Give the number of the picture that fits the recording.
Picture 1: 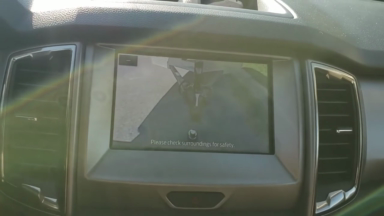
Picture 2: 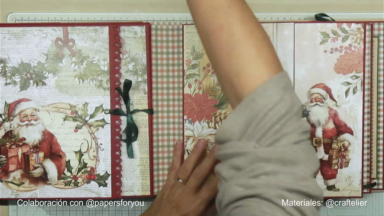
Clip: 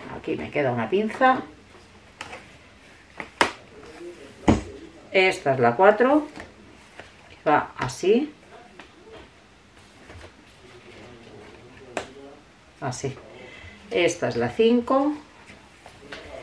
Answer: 2